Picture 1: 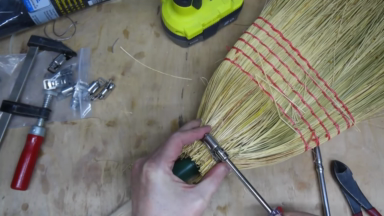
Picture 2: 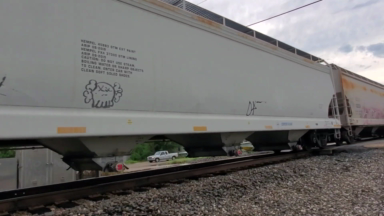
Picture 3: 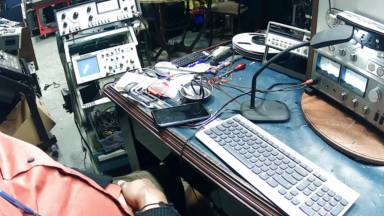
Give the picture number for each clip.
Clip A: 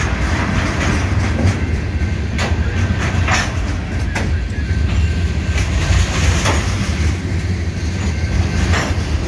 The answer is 2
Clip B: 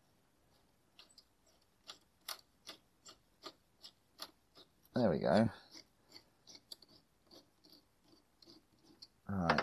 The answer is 1